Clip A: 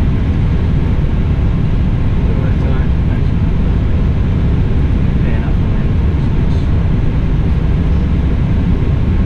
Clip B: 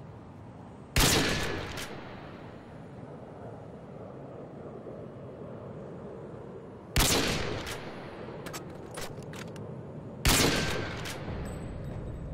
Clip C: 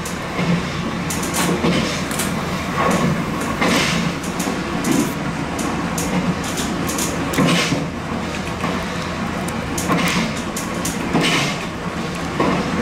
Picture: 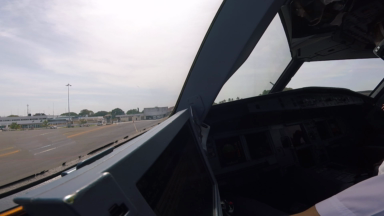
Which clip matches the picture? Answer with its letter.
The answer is A